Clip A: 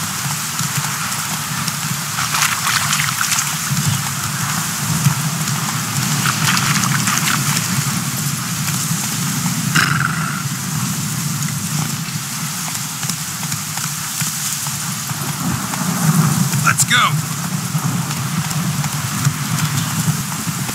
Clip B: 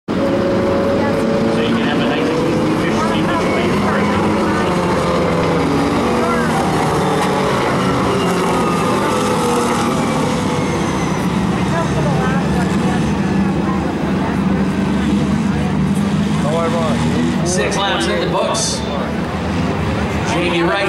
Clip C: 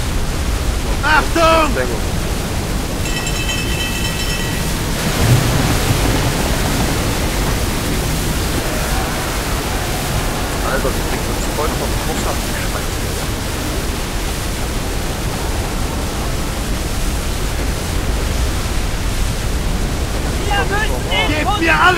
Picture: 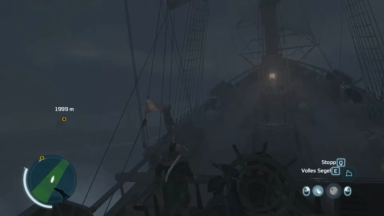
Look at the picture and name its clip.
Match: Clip C